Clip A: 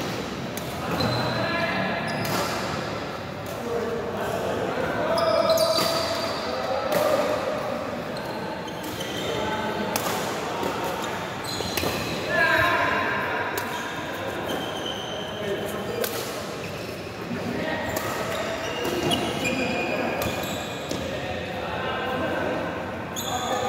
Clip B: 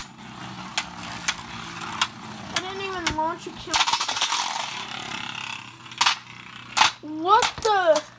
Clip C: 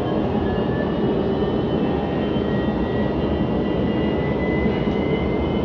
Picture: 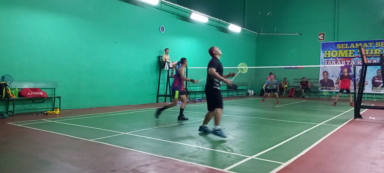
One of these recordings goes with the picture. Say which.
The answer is A